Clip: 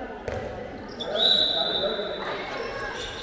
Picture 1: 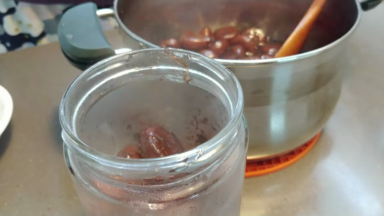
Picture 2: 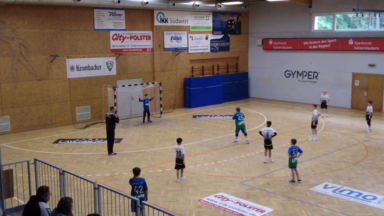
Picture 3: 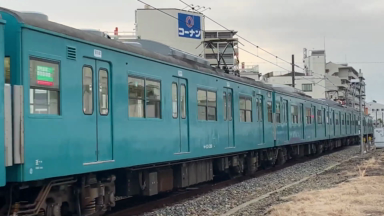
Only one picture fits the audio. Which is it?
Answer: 2